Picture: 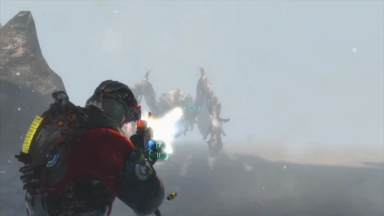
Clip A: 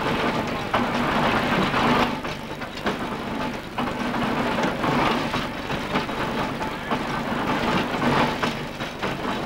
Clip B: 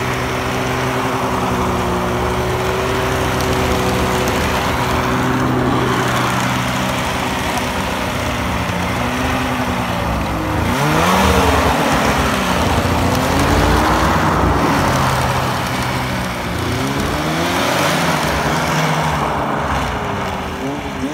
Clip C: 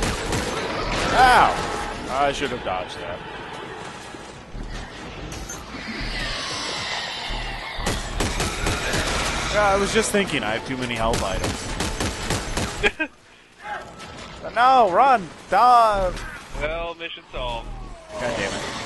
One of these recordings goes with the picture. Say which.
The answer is C